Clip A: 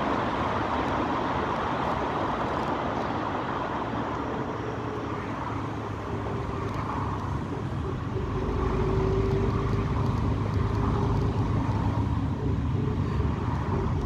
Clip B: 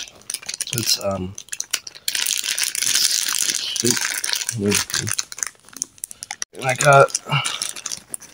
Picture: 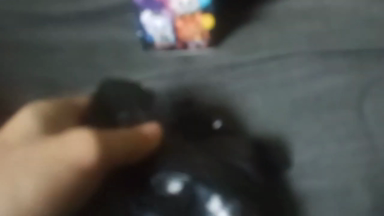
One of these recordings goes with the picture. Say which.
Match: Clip B